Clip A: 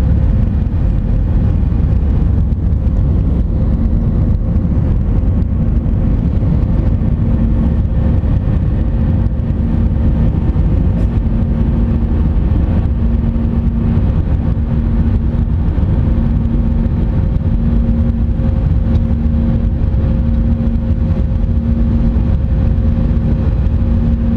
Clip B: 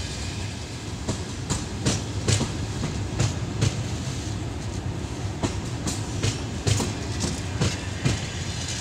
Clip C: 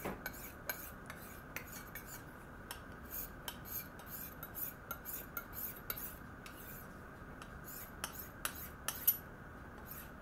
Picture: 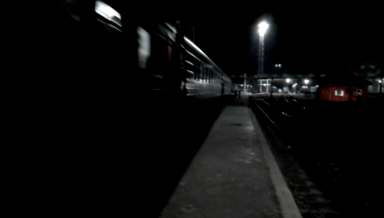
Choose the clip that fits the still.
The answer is B